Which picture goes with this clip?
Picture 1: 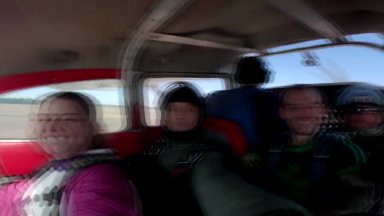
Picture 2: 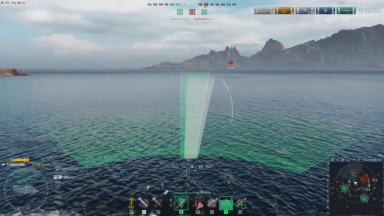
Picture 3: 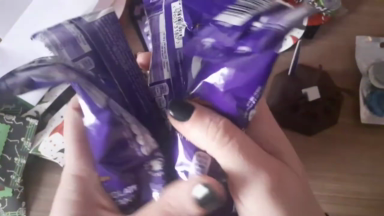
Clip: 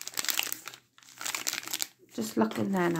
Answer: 3